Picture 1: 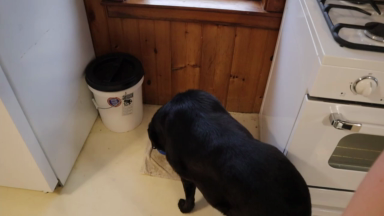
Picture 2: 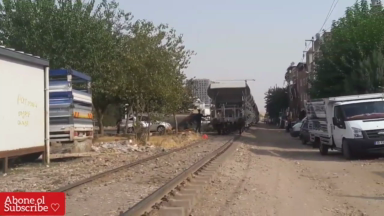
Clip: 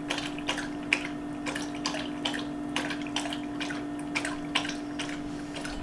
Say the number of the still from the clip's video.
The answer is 1